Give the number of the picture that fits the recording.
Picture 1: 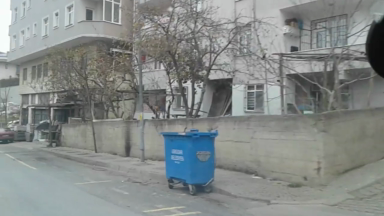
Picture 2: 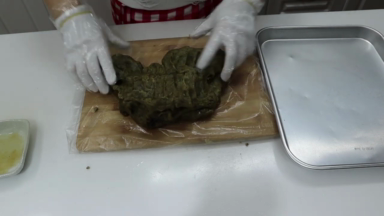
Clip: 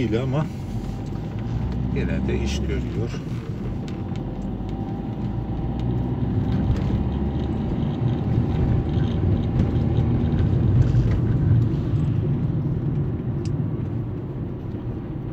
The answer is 1